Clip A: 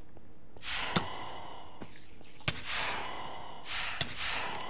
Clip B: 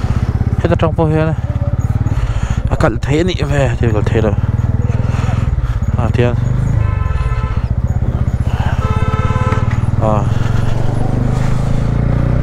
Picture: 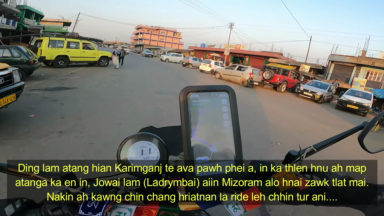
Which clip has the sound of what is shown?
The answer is B